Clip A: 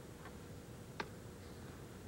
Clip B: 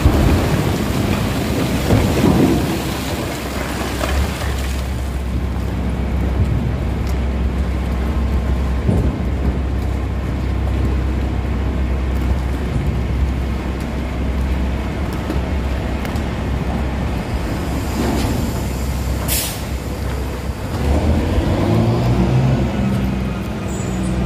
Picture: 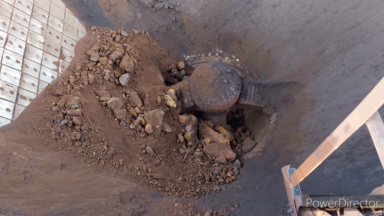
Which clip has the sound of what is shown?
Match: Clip B